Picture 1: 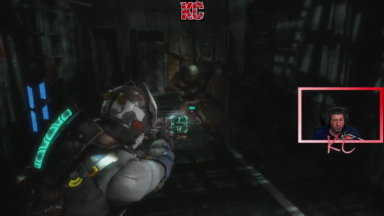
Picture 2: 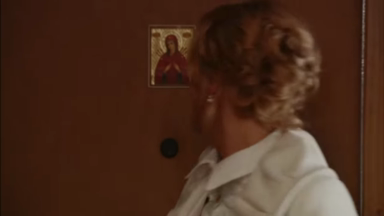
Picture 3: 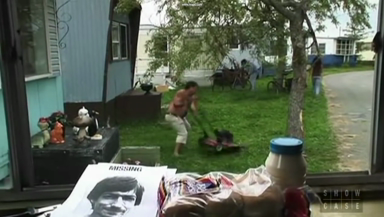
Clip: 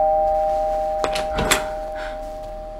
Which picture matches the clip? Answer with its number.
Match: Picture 2